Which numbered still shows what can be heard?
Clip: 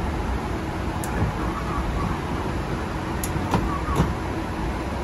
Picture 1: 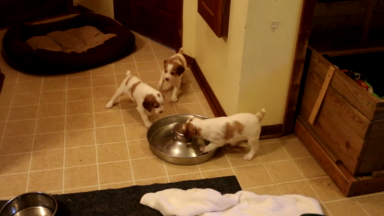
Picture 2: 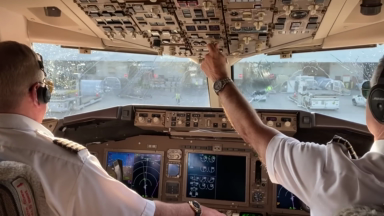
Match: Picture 2